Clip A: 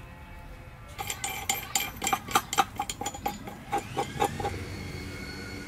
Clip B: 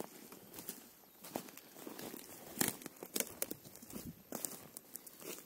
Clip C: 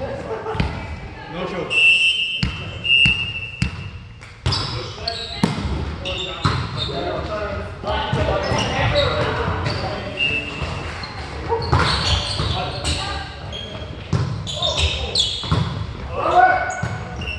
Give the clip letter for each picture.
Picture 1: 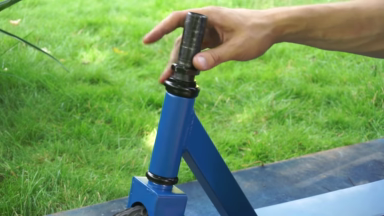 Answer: A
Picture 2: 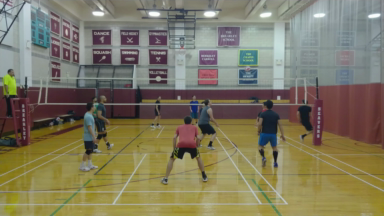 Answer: C